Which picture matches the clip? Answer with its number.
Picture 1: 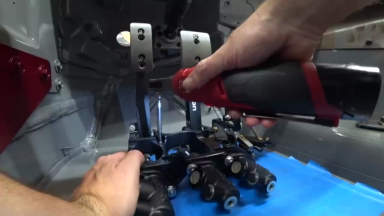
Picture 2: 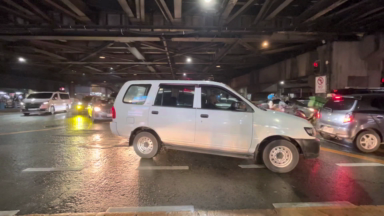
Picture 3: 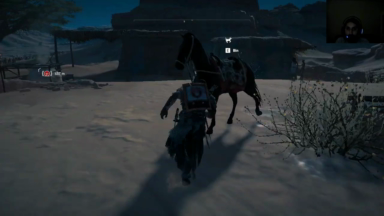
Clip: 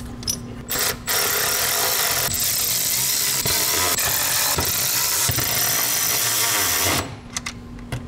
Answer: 1